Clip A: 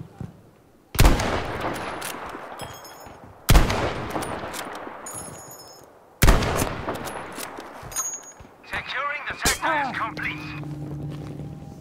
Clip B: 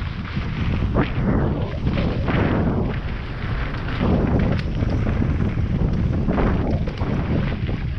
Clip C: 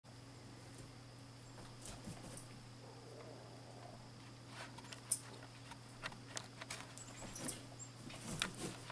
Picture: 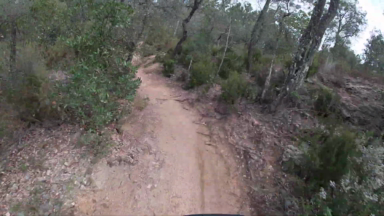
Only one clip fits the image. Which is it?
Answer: B